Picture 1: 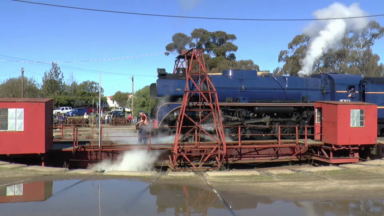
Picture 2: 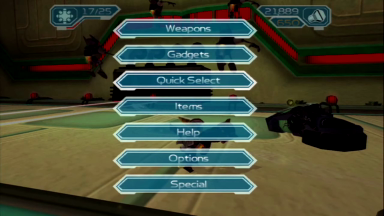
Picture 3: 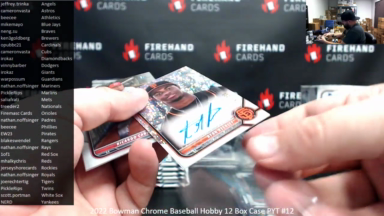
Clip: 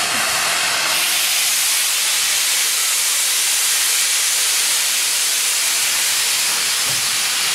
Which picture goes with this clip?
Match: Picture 1